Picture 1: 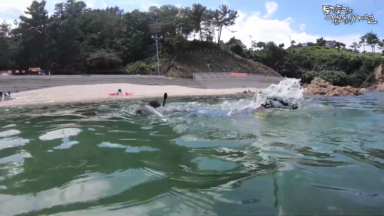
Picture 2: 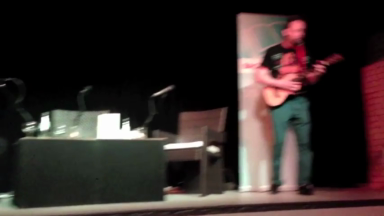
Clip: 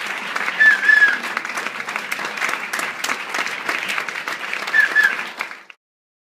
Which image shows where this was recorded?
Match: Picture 2